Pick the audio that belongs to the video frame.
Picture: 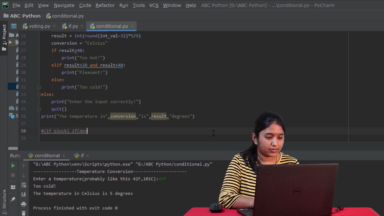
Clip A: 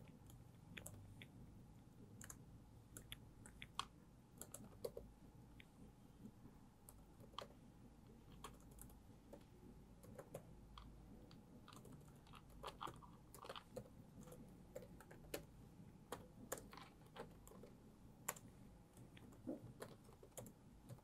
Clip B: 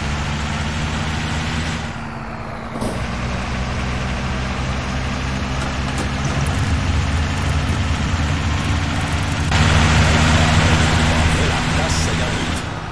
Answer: A